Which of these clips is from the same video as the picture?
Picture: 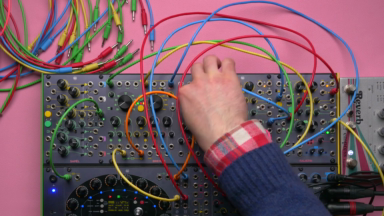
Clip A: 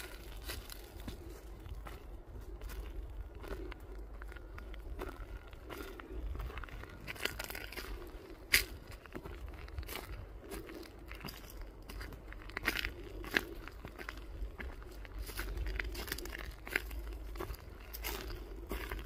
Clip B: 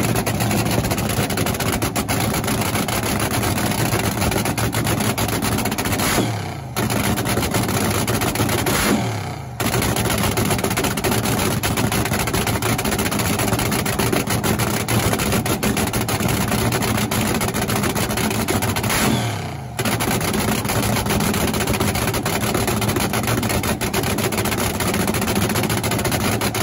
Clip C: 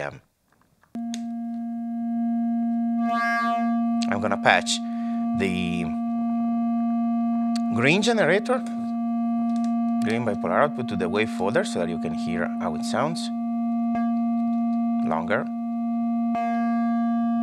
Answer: C